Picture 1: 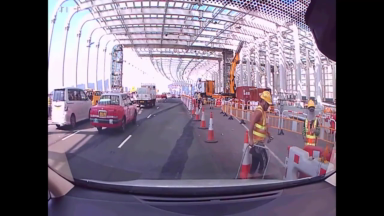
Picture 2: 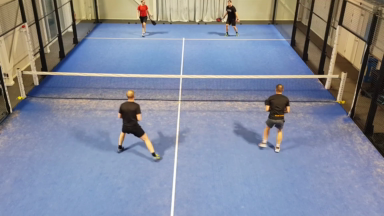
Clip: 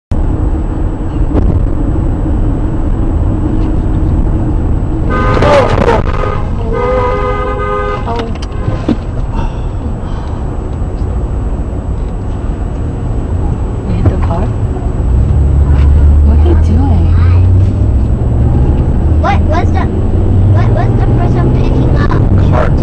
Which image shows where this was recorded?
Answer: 1